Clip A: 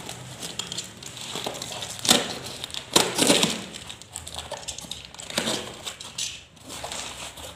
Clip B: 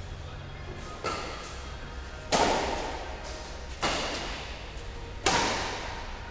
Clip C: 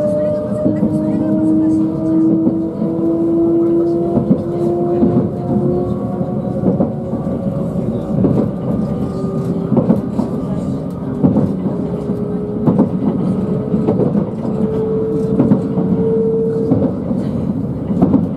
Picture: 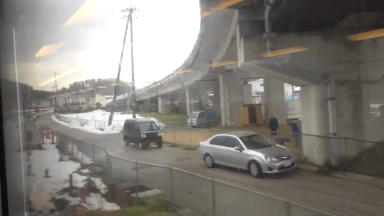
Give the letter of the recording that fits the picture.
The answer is C